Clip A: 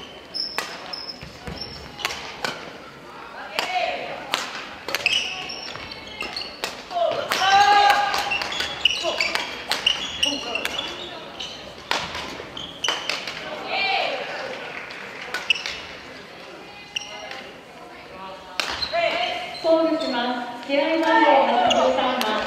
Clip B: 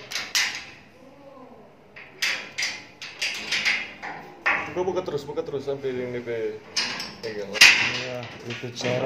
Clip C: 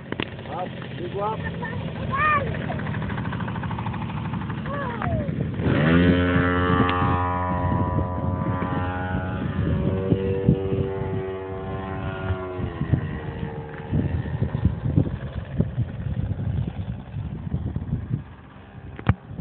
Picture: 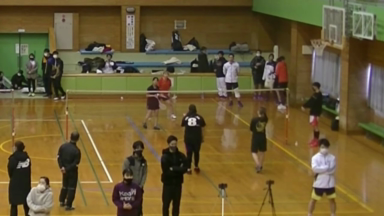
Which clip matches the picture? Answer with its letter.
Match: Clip A